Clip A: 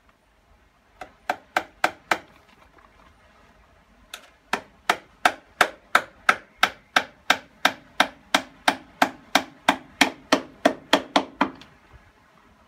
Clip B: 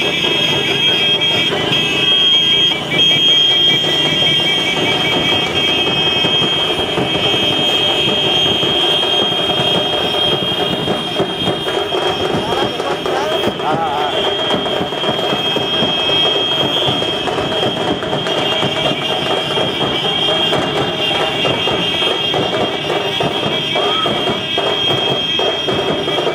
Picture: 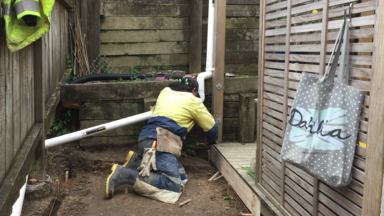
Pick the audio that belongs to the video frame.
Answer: A